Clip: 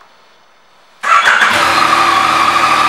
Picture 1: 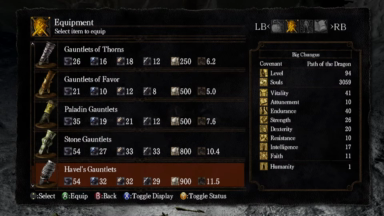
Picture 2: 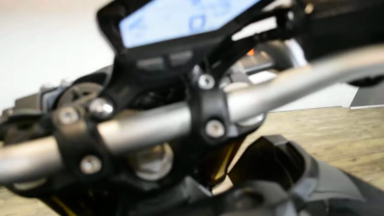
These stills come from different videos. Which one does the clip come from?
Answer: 2